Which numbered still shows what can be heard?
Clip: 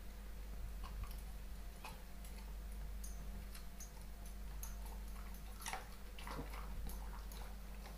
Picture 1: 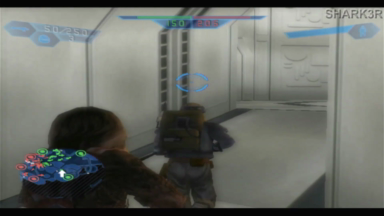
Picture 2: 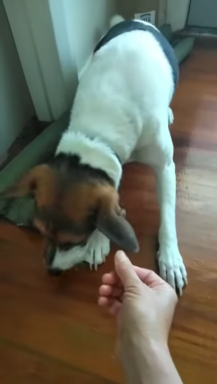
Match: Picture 2